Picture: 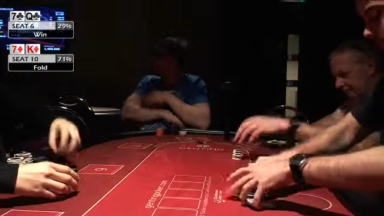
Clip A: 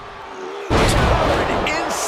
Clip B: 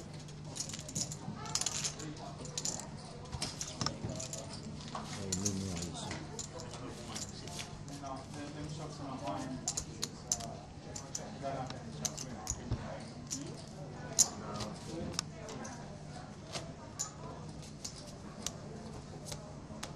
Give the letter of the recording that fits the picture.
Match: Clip B